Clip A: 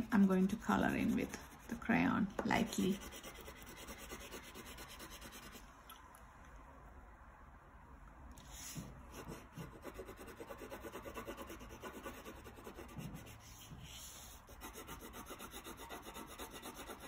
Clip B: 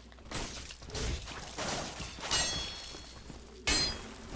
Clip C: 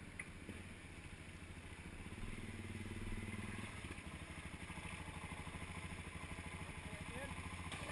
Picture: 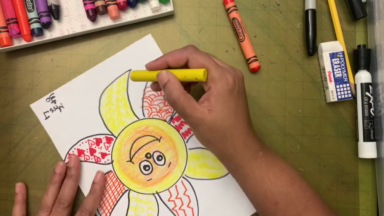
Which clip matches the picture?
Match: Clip A